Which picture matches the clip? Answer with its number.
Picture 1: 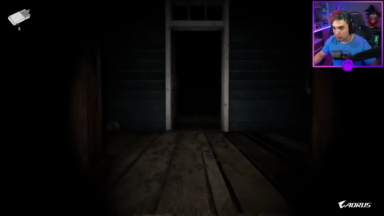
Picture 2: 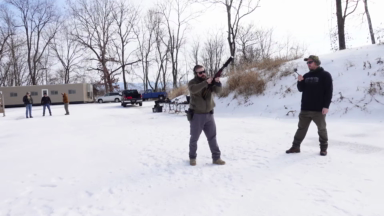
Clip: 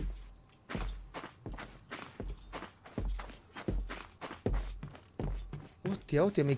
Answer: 1